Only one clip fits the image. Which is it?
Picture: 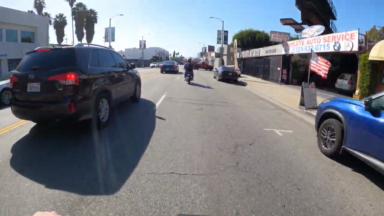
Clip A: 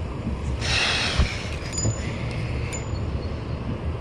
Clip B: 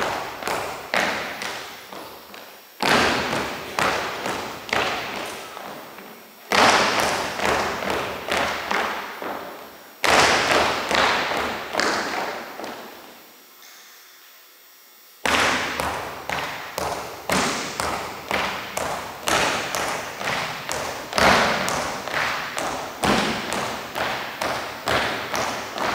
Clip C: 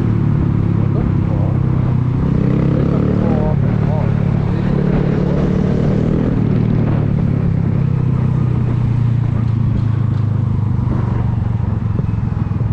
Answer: C